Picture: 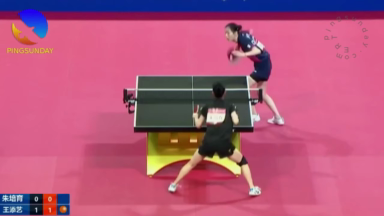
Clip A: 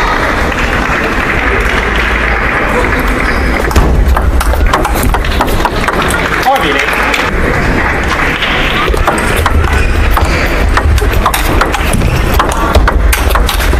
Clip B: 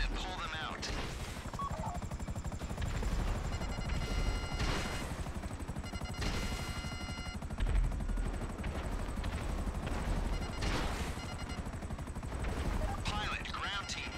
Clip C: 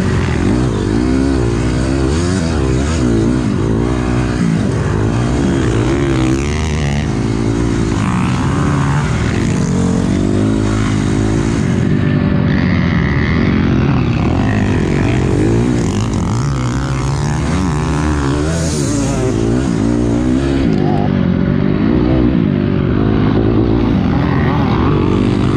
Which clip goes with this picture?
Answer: A